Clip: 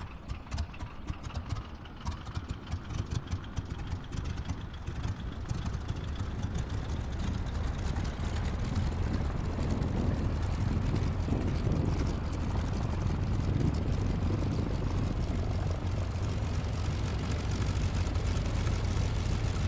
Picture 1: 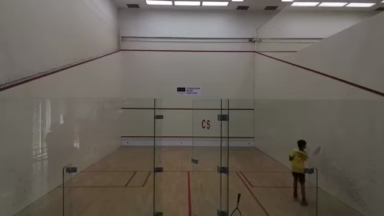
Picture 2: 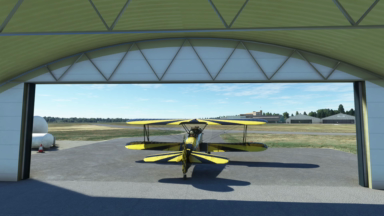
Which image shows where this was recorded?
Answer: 2